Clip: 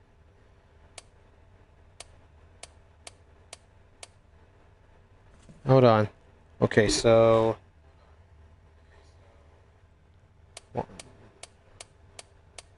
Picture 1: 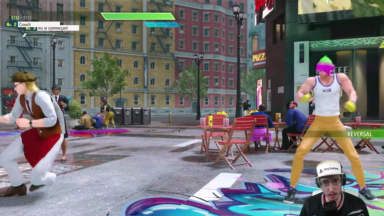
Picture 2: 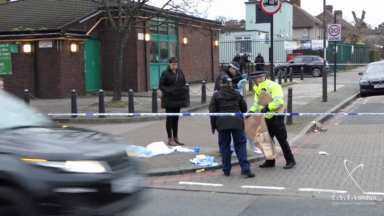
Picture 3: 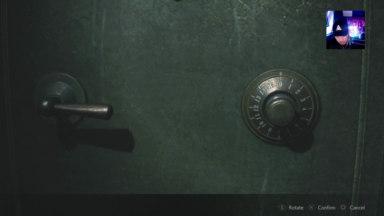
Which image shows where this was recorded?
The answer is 3